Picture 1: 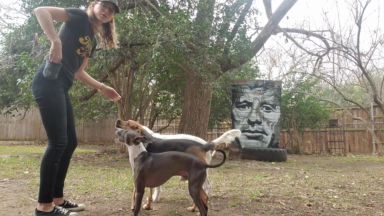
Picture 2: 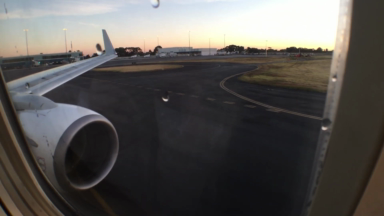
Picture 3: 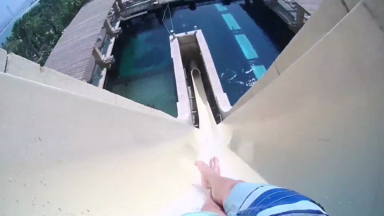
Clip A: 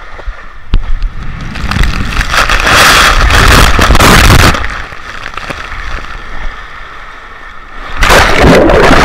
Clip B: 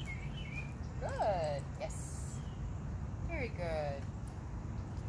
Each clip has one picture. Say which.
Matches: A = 3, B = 1